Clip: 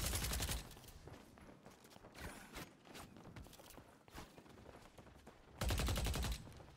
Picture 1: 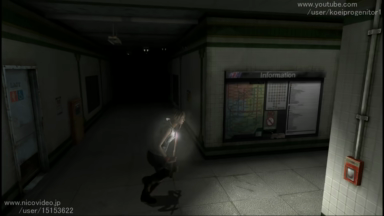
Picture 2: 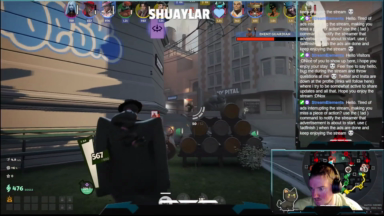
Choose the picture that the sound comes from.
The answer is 2